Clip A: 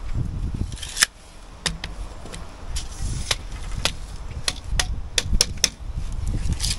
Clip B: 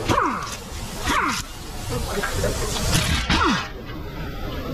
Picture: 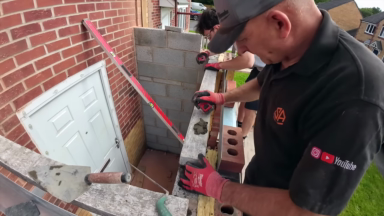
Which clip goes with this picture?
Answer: A